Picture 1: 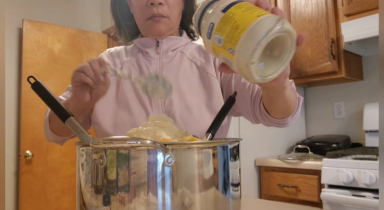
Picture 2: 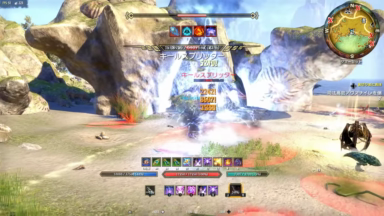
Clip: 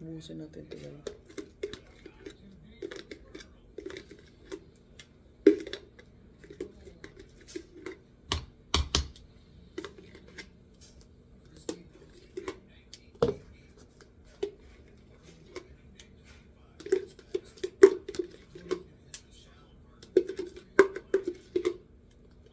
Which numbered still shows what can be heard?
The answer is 1